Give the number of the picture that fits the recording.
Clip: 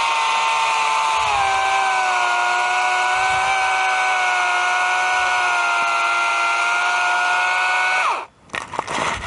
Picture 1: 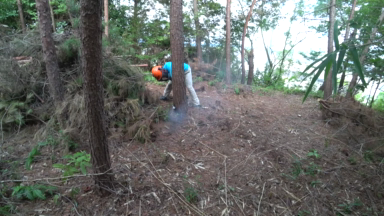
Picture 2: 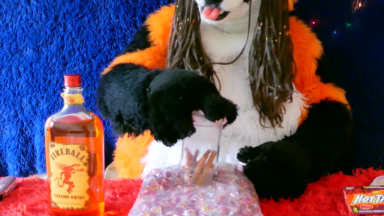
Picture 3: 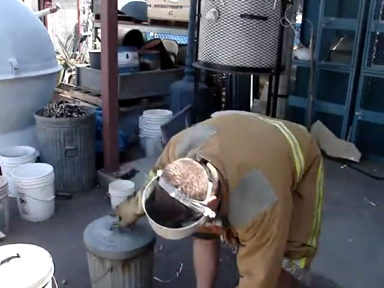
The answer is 1